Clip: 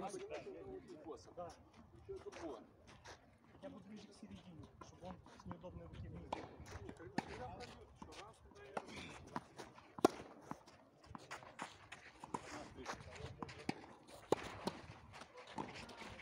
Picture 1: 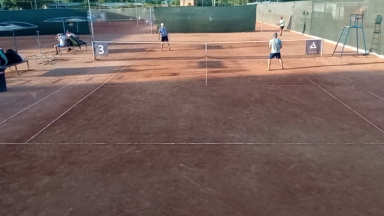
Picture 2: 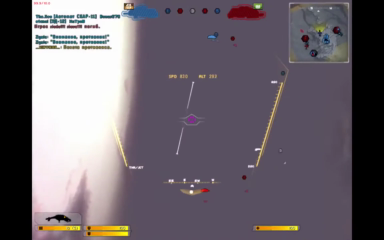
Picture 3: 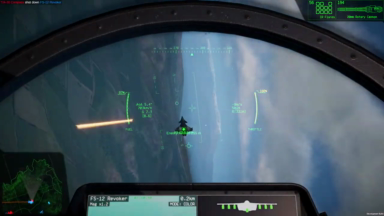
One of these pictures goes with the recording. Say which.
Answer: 1